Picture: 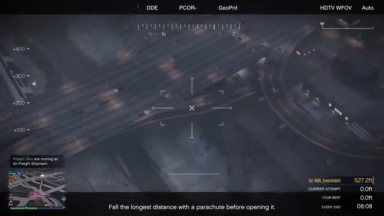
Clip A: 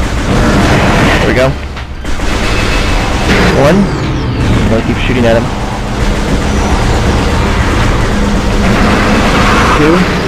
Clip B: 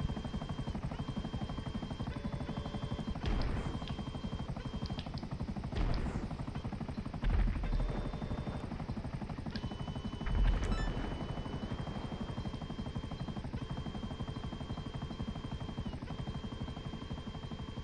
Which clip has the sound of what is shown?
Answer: B